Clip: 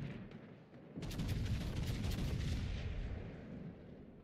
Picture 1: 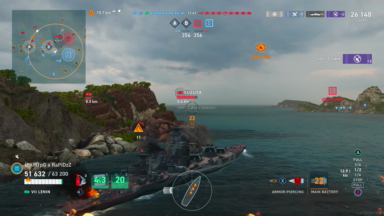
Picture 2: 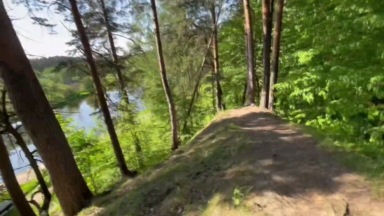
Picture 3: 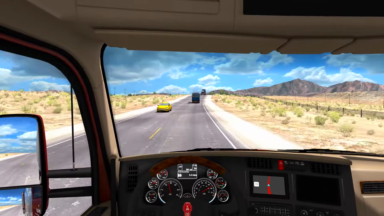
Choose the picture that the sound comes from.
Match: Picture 1